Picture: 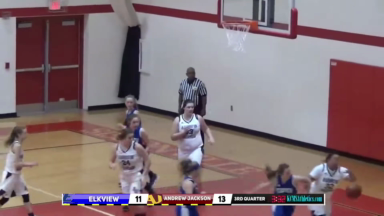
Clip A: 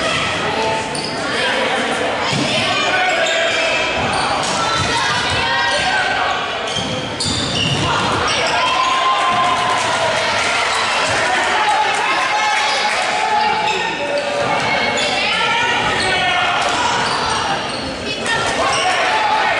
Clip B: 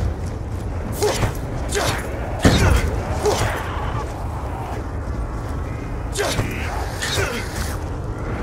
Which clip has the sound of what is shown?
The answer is A